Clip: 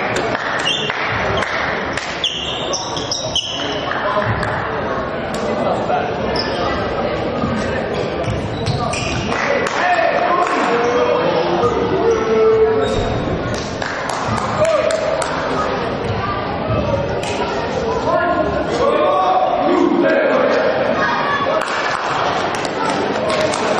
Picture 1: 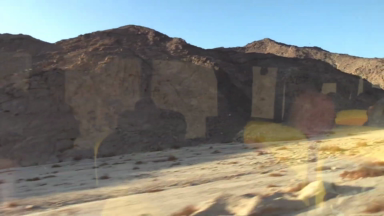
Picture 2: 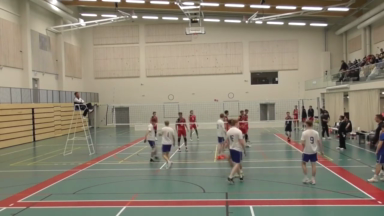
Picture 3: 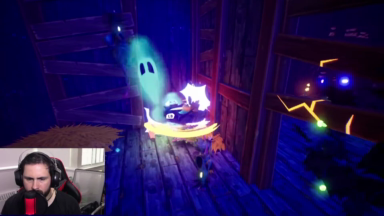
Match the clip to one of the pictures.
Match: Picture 2